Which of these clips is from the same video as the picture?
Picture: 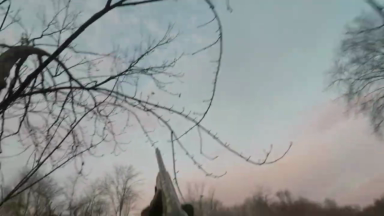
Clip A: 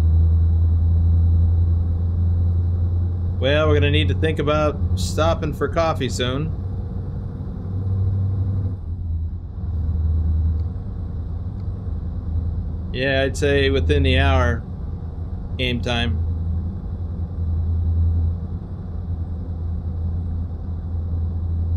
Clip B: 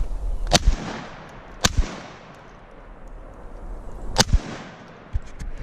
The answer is B